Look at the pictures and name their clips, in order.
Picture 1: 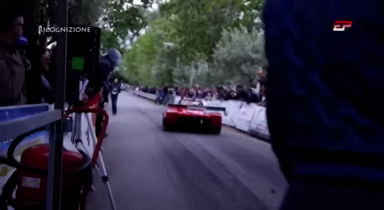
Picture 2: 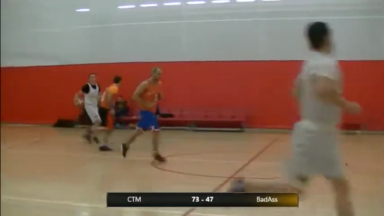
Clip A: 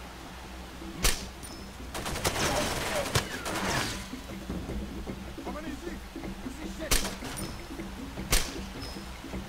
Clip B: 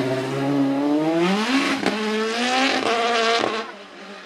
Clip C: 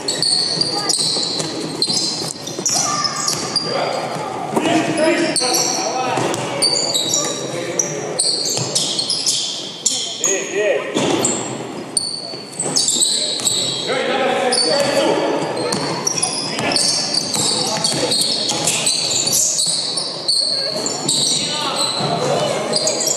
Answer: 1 B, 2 C